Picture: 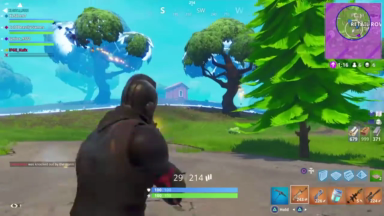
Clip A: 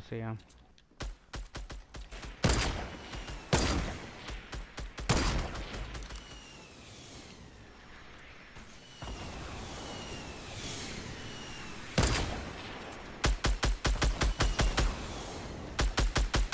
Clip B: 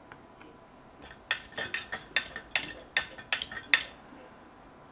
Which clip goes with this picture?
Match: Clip A